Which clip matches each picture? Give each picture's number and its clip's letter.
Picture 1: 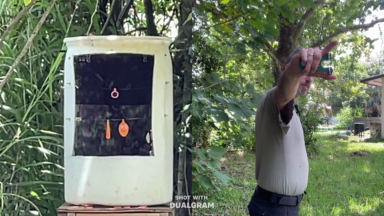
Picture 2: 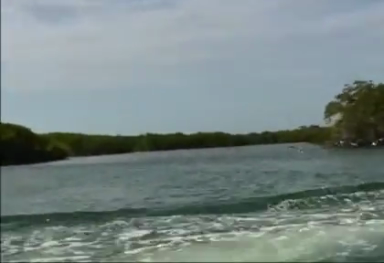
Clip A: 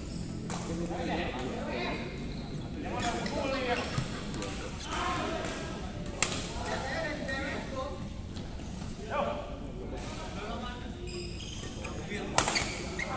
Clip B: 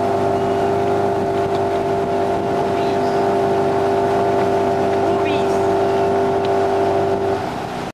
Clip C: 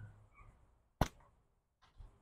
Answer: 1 C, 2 B